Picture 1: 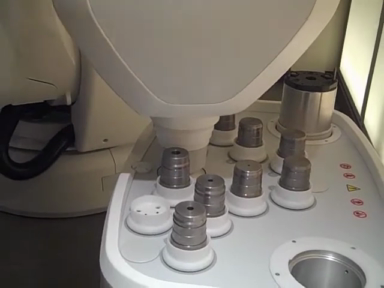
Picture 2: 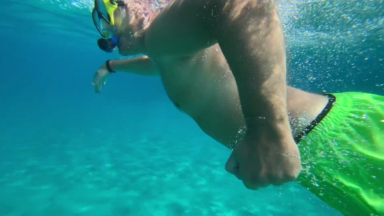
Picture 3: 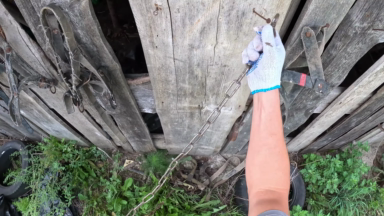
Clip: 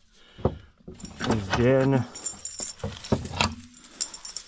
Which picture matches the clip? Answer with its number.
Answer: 3